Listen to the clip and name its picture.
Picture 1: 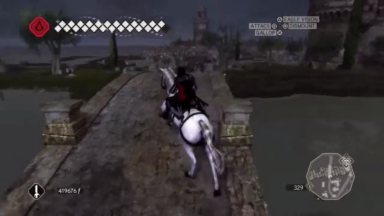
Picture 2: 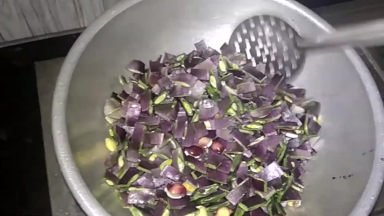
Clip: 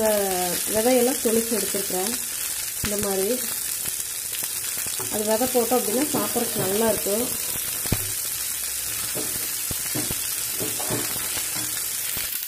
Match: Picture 2